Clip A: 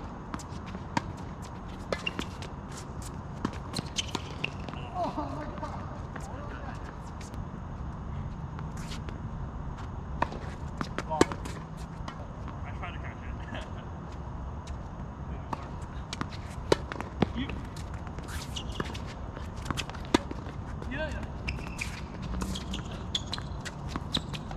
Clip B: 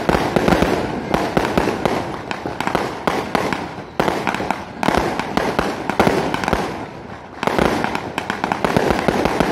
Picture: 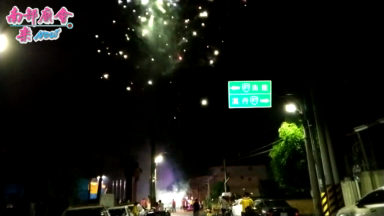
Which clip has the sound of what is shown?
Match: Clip B